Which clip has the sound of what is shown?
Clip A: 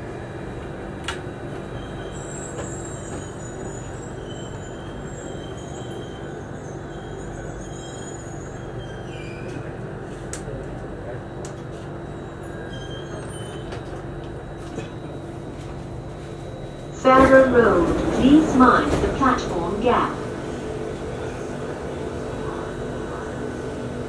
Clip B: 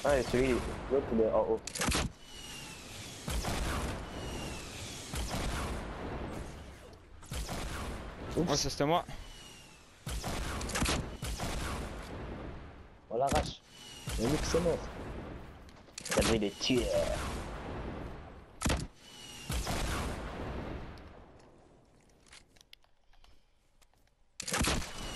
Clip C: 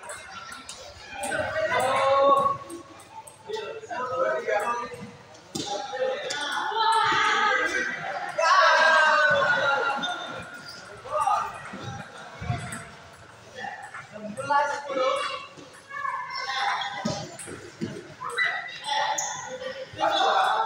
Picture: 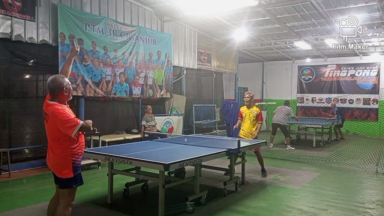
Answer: C